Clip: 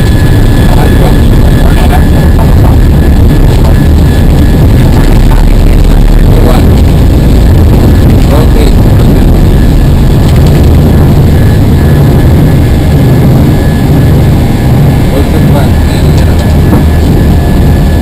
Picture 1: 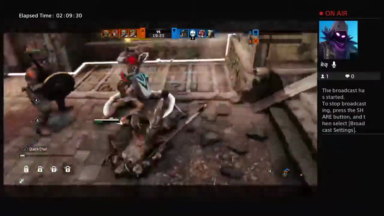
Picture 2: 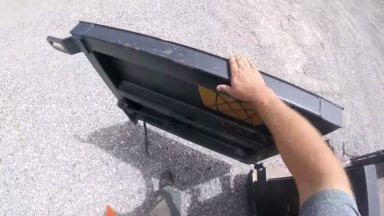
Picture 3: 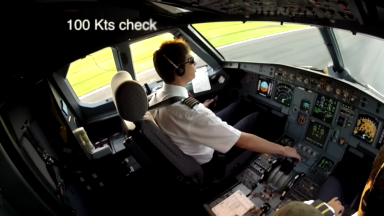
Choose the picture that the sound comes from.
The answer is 3